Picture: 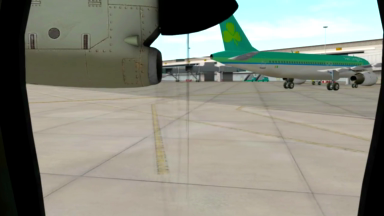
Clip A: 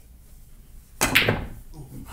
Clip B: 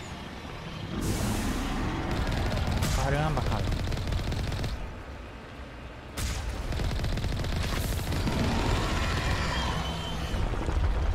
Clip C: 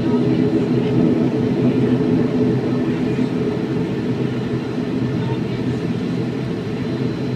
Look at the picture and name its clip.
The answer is C